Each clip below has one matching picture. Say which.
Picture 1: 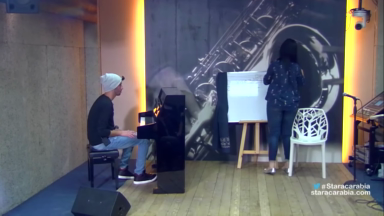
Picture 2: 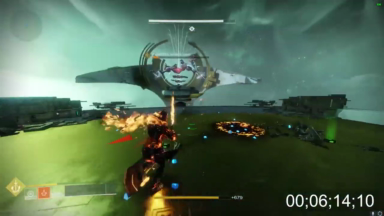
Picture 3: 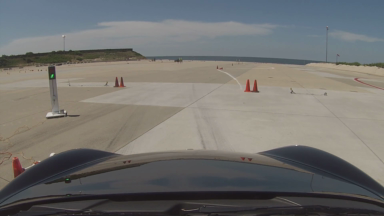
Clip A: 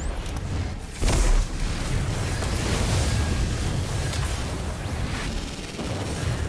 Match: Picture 2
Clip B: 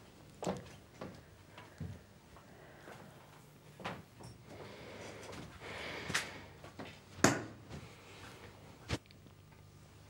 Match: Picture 1